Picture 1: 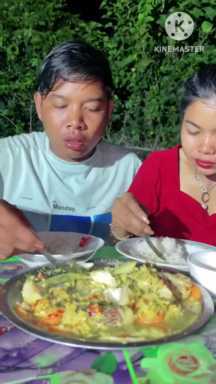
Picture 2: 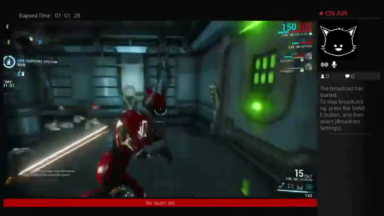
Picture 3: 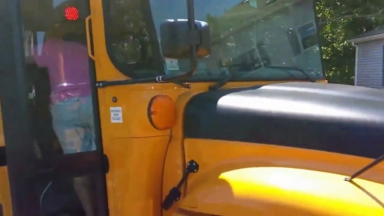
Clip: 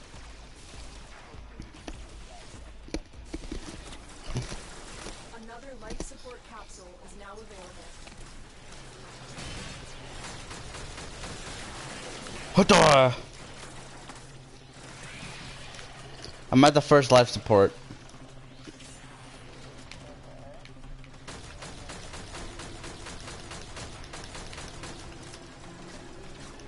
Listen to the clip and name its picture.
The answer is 2